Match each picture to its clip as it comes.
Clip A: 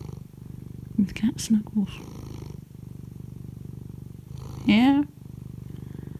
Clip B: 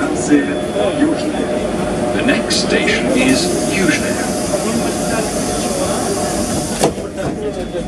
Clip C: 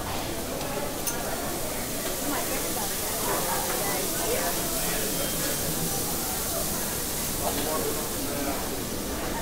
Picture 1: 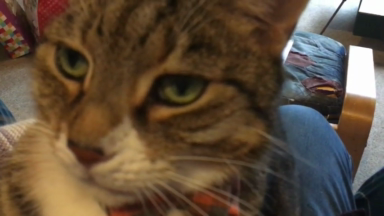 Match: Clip A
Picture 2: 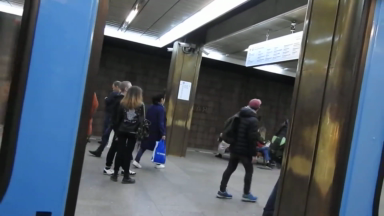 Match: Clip B